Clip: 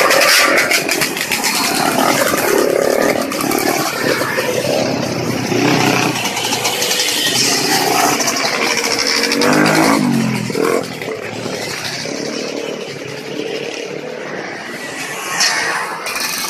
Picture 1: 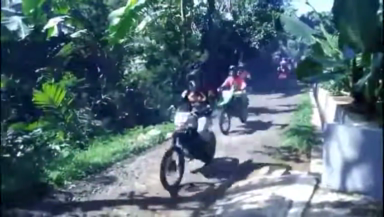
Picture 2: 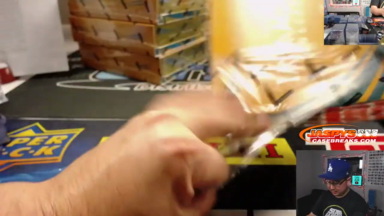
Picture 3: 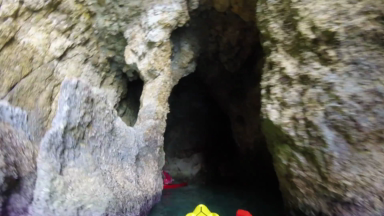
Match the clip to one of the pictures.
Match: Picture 1